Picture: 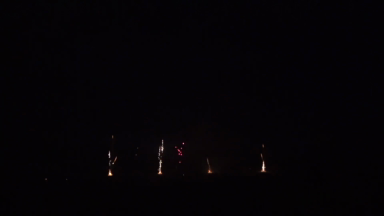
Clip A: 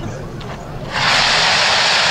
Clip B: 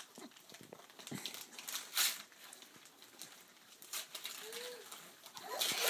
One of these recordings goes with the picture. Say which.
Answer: A